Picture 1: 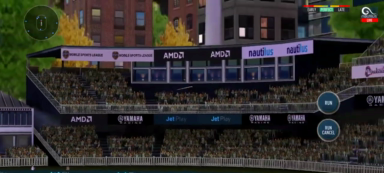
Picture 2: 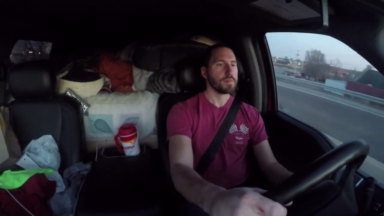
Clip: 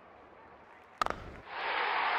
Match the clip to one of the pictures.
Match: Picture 1